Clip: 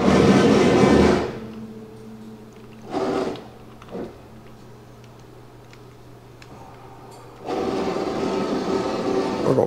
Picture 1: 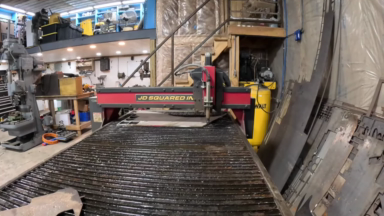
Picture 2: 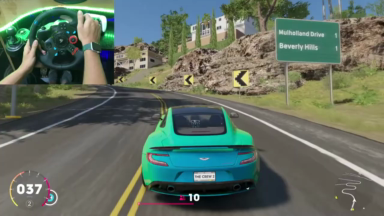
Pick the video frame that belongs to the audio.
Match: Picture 1